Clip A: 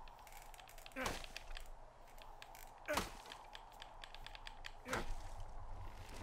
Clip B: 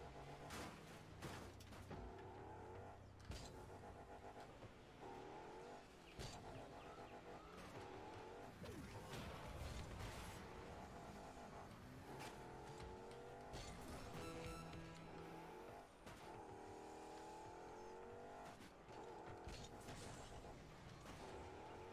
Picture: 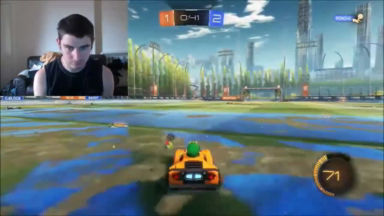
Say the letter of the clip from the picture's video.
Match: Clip B